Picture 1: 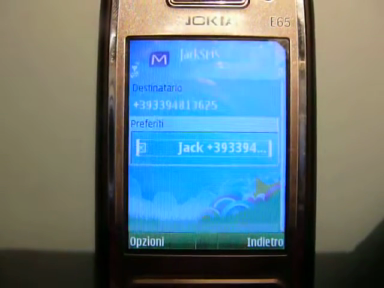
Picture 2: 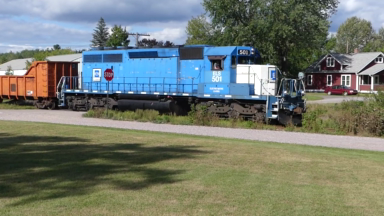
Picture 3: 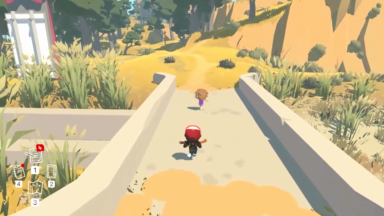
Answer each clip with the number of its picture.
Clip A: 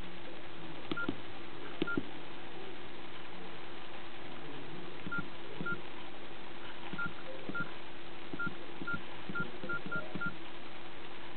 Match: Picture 1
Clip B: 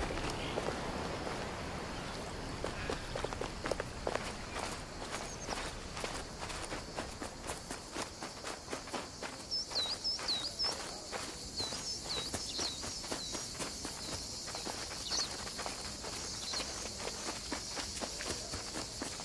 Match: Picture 3